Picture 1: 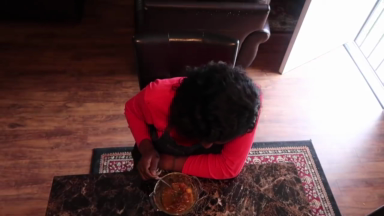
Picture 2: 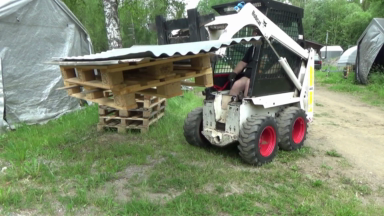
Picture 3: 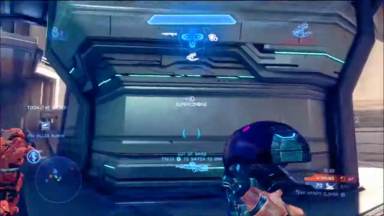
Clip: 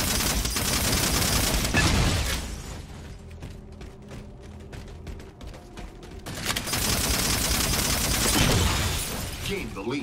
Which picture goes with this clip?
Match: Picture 3